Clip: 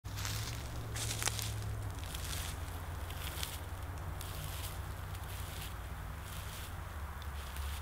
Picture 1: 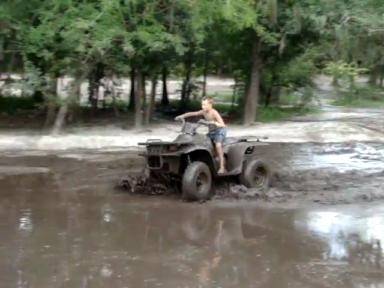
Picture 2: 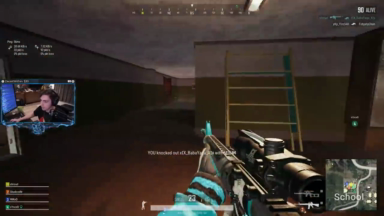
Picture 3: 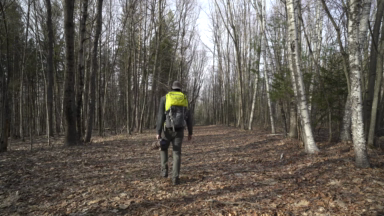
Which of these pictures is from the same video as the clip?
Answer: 3